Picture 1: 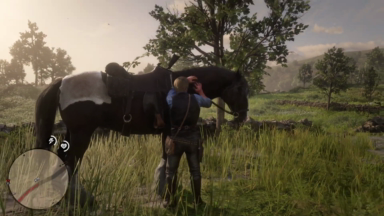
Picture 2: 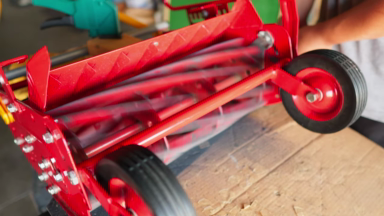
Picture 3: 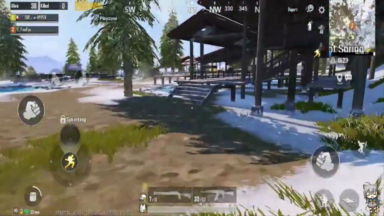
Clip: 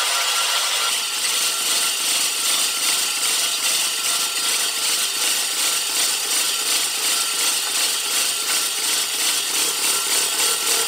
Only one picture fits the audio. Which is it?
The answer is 2